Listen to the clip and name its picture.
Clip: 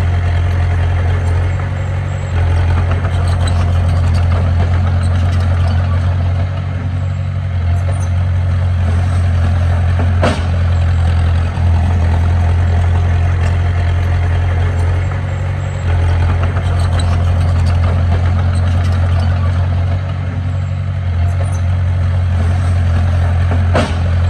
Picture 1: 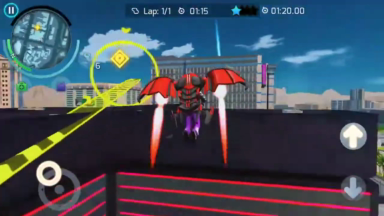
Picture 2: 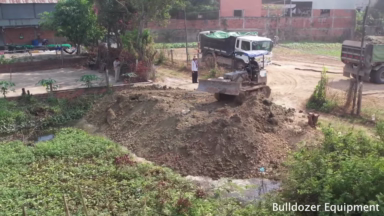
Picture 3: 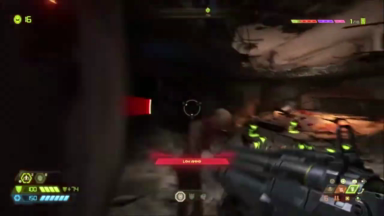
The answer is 2